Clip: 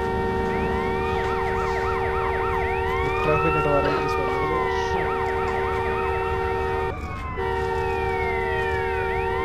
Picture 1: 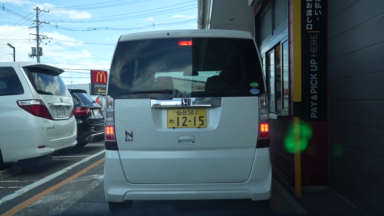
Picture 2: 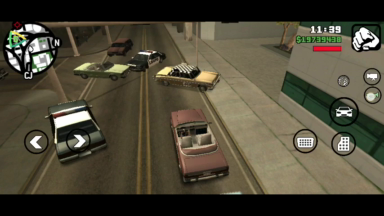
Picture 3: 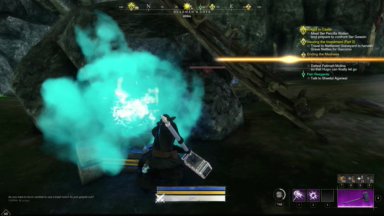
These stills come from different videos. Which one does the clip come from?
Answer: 2